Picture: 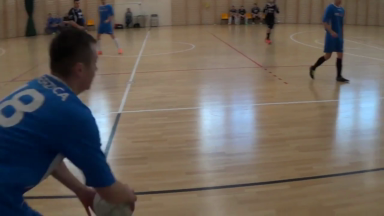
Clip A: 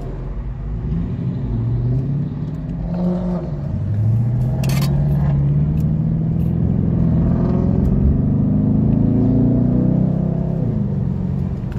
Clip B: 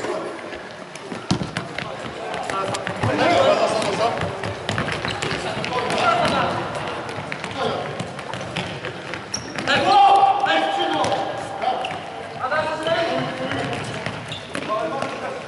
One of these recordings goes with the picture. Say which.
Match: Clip B